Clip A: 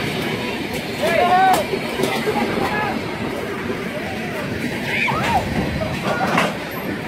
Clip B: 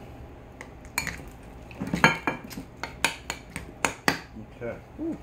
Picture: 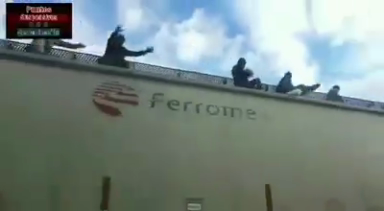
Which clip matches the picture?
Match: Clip A